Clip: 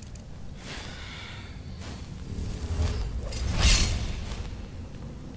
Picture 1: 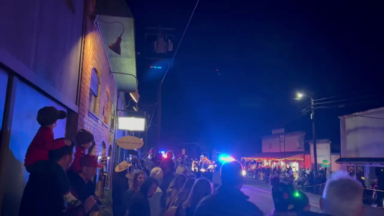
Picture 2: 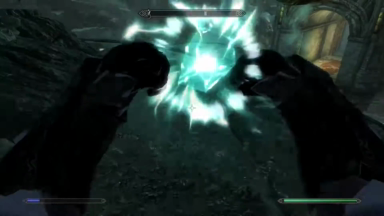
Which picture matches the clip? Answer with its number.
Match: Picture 2